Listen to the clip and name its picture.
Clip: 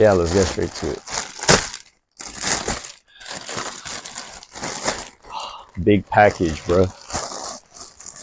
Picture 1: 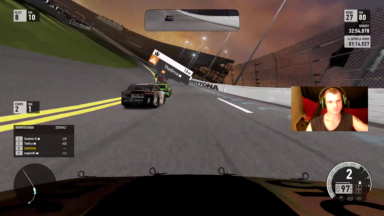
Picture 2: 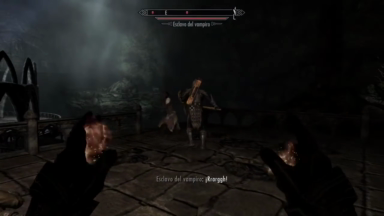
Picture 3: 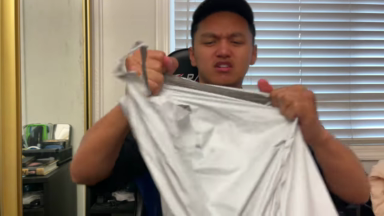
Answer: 3